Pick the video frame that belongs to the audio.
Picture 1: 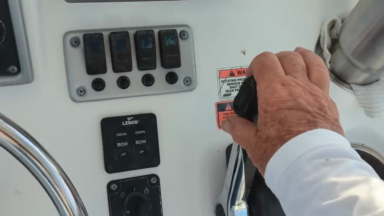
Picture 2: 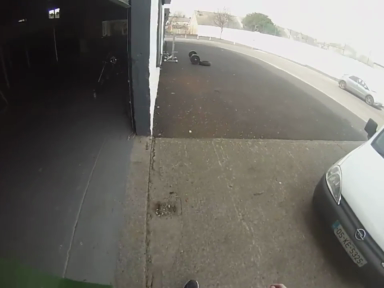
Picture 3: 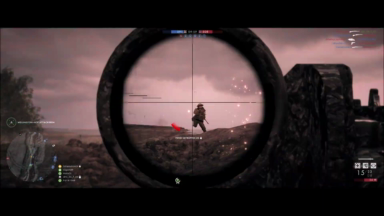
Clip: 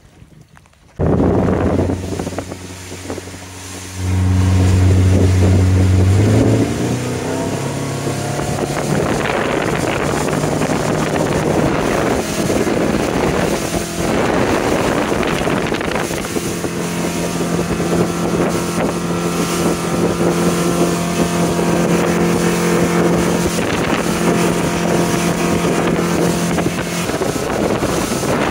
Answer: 1